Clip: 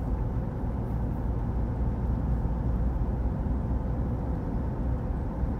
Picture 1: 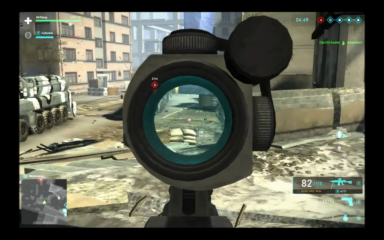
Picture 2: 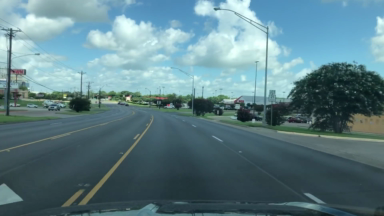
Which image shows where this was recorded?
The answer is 2